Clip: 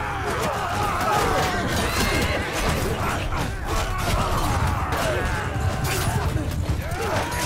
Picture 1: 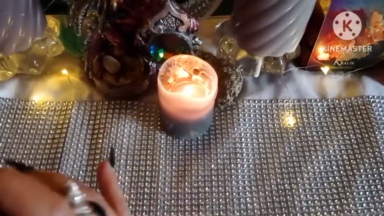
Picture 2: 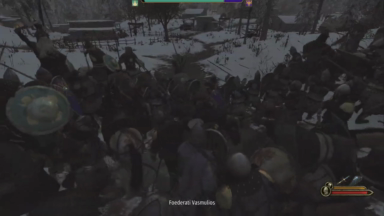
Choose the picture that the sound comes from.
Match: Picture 2